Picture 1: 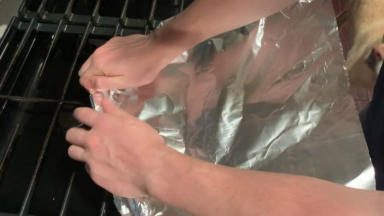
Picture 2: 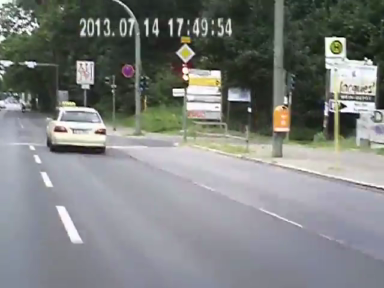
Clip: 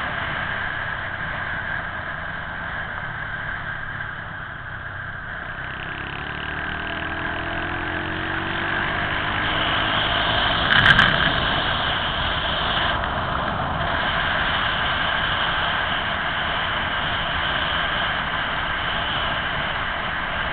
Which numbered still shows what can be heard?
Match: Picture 2